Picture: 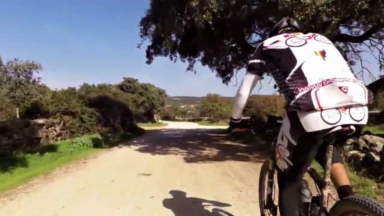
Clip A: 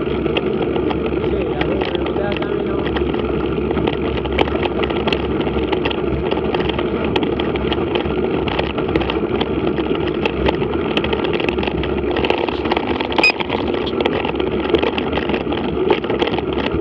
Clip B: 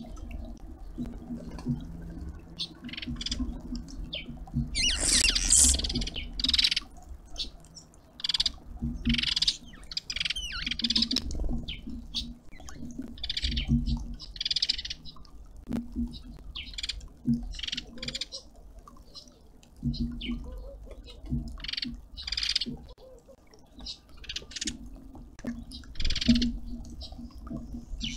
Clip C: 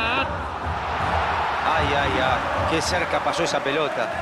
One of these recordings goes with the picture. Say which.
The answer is A